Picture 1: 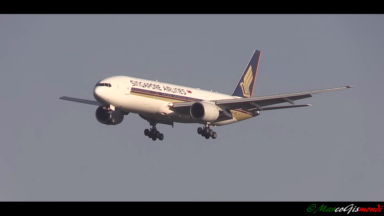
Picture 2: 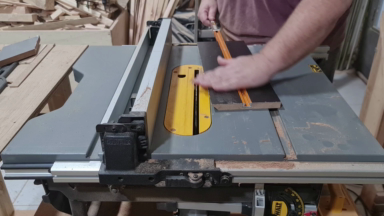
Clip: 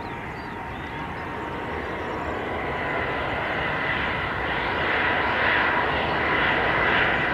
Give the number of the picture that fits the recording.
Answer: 1